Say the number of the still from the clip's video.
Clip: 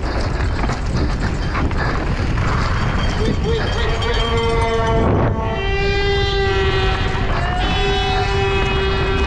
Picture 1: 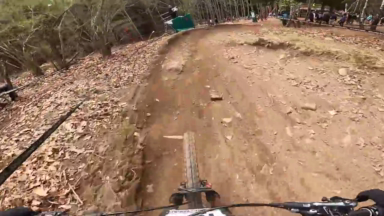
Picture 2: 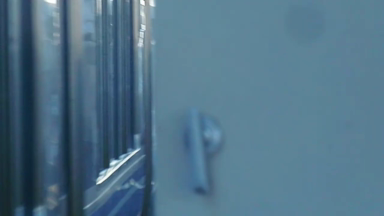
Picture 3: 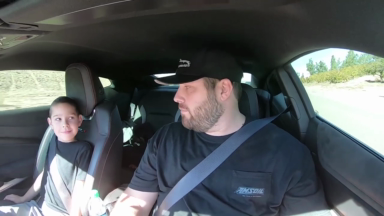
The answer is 1